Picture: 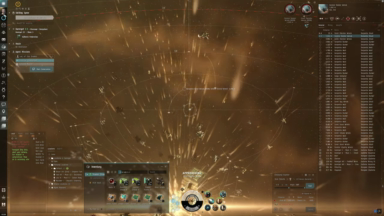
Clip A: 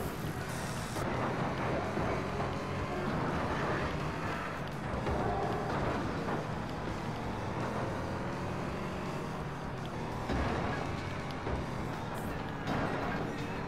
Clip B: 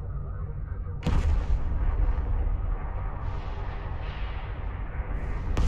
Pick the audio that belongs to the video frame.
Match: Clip B